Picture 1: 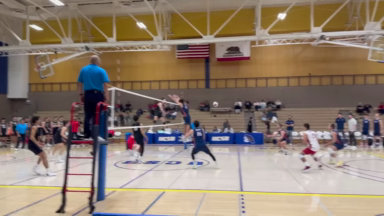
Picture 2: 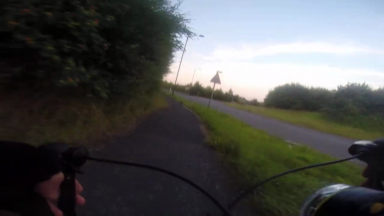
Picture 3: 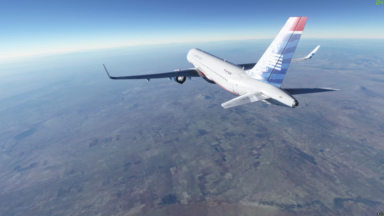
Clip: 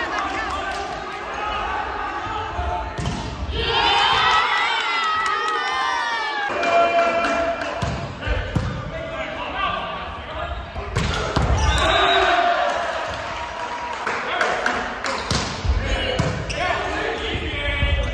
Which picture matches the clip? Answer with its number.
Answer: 1